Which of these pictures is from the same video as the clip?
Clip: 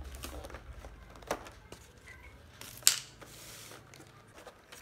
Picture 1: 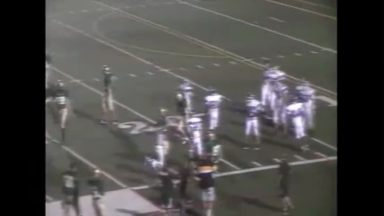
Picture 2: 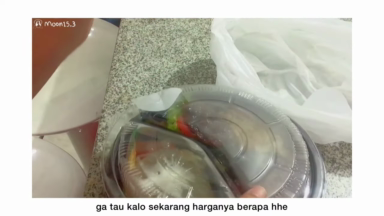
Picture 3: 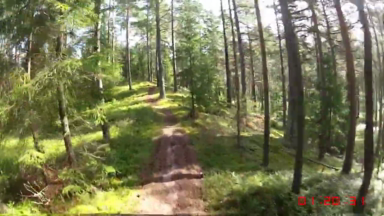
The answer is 2